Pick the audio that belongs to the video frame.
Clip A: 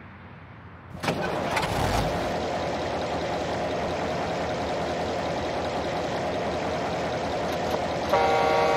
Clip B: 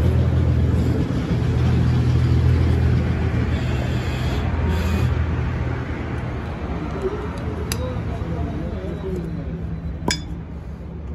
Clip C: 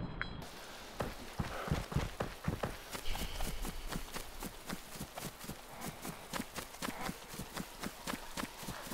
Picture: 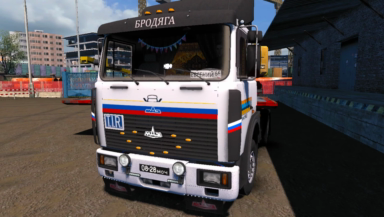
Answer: A